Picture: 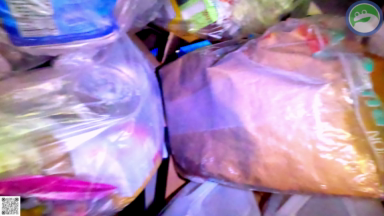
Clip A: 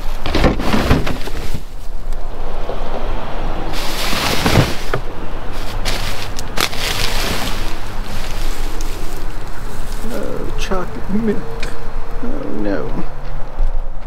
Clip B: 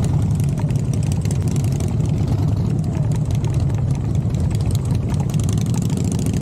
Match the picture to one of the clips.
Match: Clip A